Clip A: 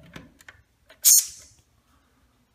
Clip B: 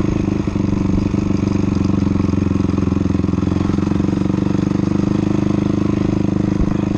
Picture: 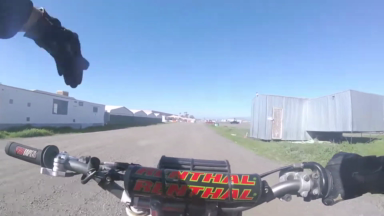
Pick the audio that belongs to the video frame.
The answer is B